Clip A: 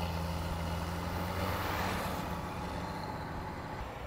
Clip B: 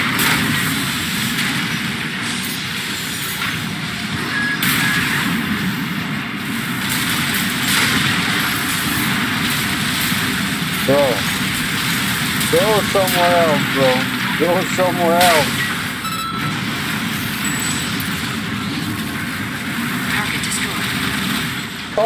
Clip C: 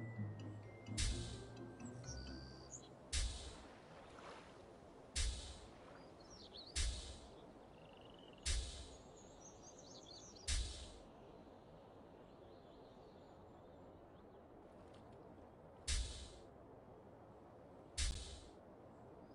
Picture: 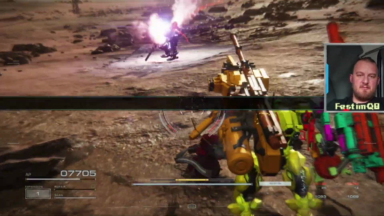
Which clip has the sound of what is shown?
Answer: B